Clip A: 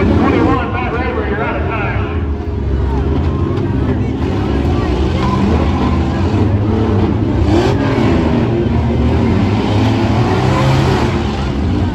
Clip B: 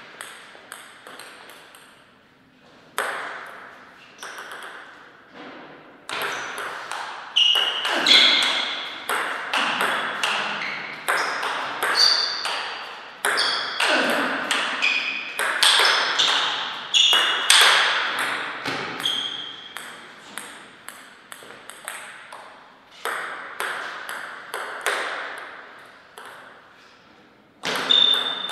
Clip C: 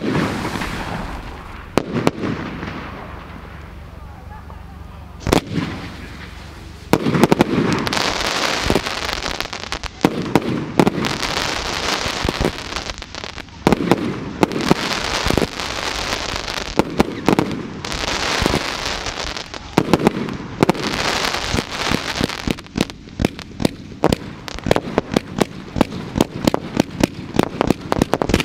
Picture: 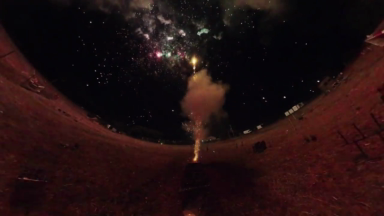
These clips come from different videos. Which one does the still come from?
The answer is C